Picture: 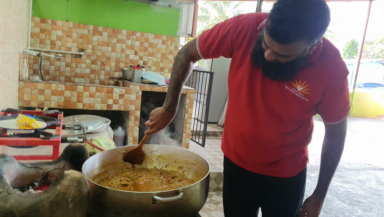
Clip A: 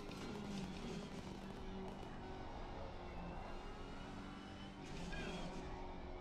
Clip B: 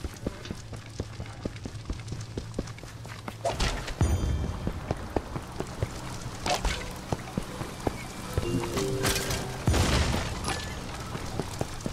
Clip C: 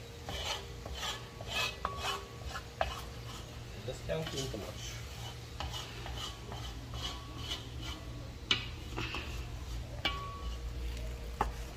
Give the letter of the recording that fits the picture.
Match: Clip C